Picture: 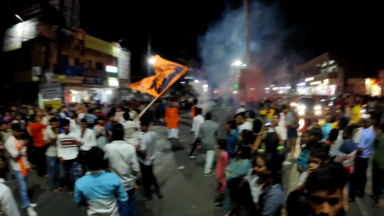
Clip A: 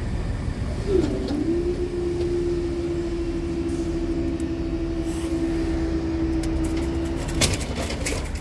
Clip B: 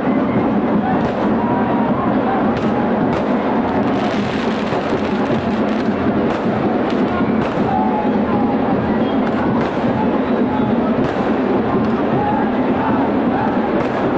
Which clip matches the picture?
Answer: B